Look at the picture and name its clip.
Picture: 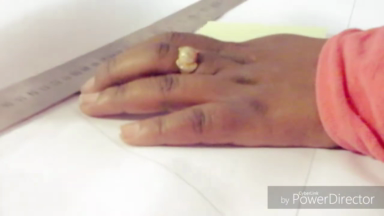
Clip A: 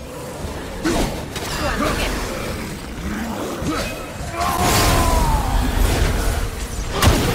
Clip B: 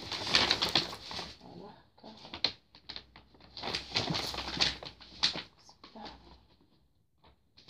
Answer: B